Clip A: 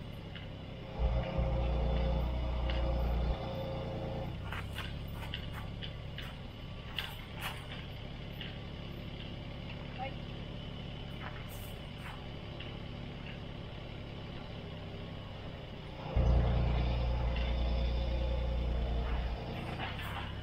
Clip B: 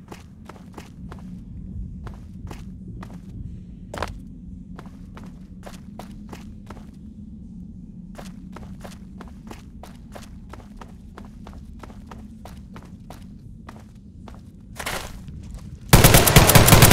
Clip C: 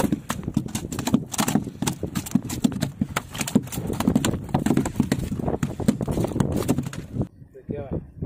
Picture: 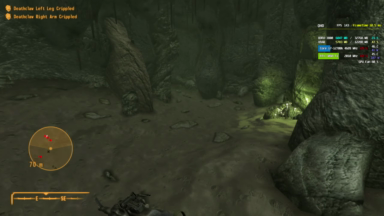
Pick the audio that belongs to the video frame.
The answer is B